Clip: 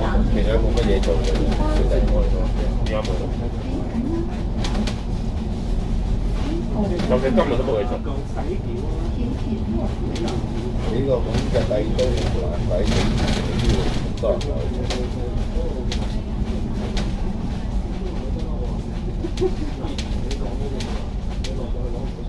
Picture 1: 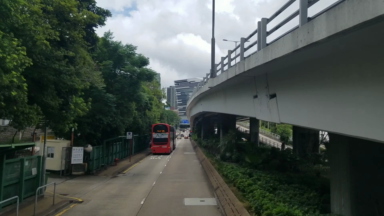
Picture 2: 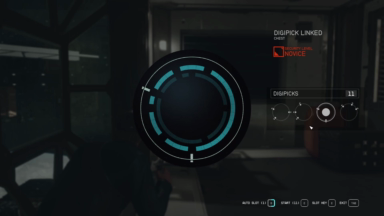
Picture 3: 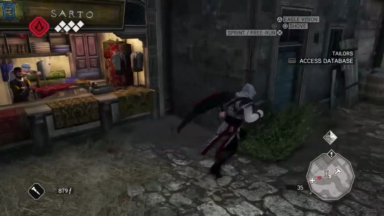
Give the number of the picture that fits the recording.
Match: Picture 1